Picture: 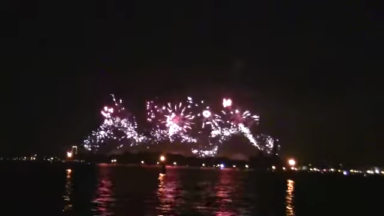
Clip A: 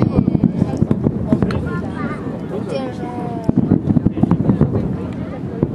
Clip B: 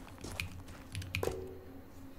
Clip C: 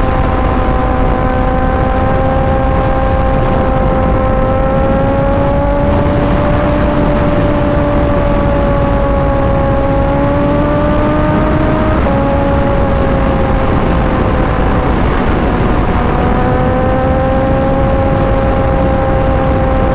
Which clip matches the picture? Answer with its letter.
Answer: A